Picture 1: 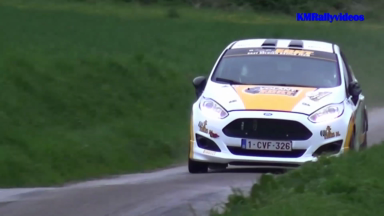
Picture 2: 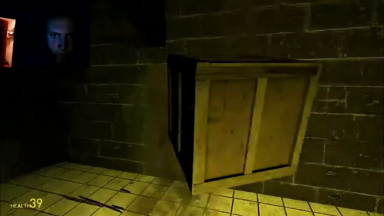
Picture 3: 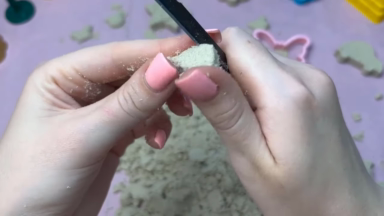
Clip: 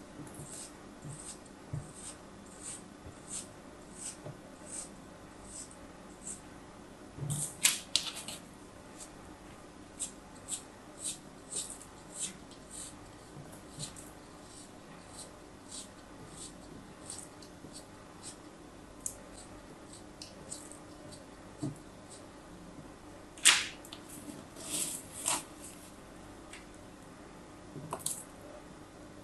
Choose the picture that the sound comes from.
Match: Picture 3